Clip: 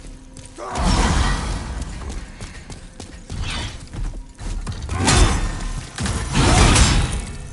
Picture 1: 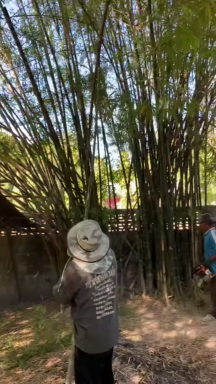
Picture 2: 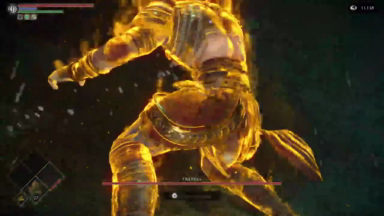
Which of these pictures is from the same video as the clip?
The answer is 2